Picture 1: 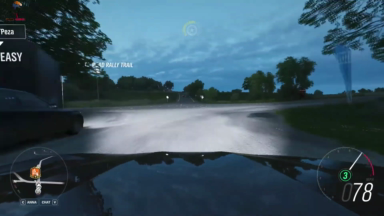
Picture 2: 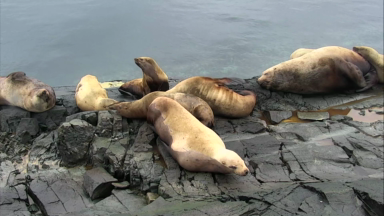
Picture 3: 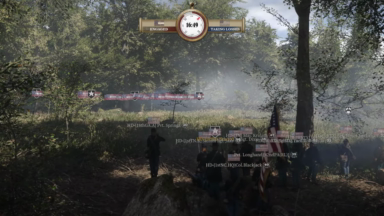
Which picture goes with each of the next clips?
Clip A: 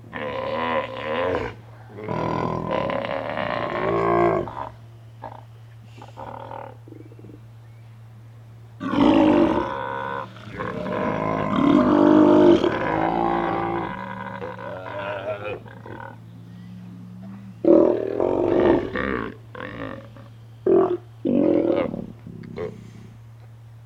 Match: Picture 2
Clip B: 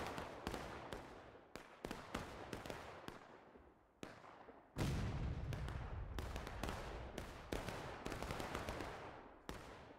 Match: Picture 3